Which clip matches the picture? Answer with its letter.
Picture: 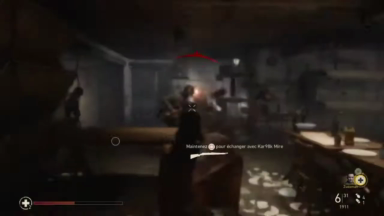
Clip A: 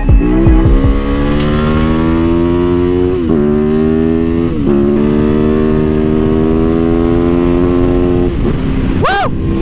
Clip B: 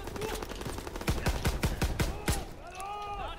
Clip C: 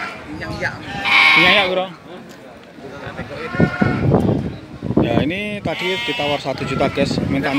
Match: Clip B